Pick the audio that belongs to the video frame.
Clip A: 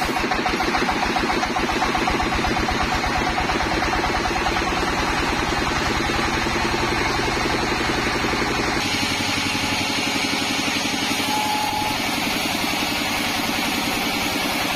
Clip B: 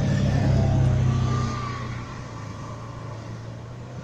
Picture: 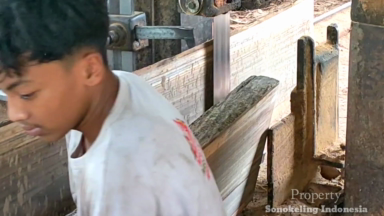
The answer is A